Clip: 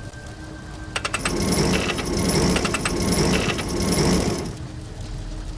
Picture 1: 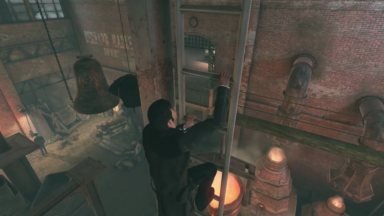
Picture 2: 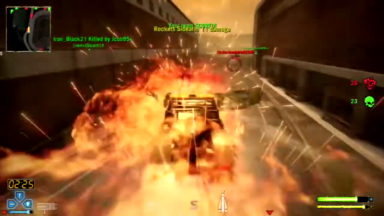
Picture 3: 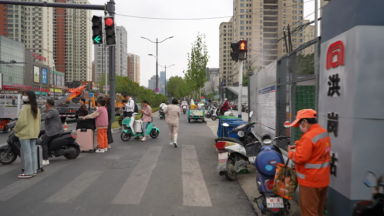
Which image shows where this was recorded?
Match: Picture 1